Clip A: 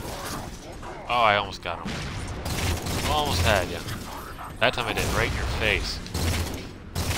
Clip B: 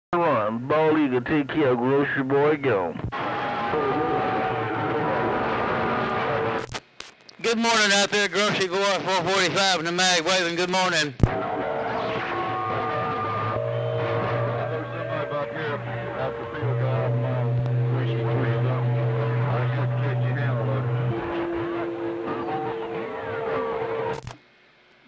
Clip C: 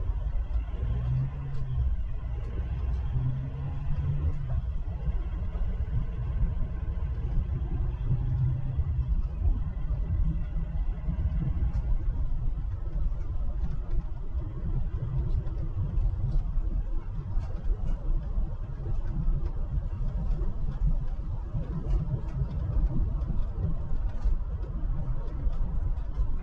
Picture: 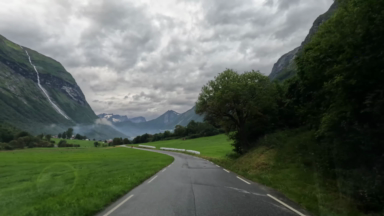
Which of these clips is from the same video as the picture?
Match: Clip C